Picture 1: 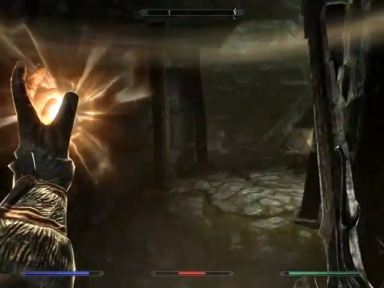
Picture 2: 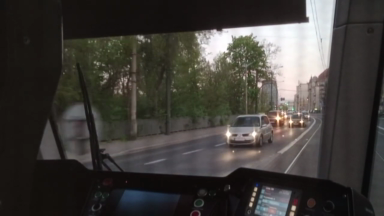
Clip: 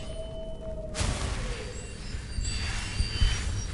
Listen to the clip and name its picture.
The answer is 1